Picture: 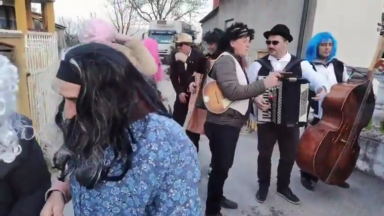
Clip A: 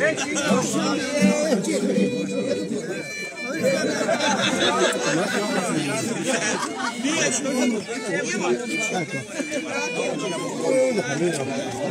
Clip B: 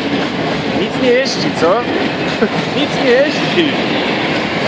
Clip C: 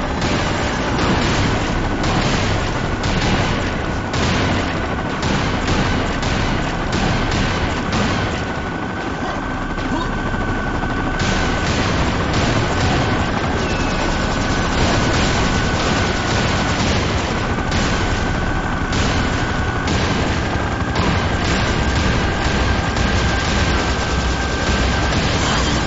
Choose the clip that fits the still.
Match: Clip A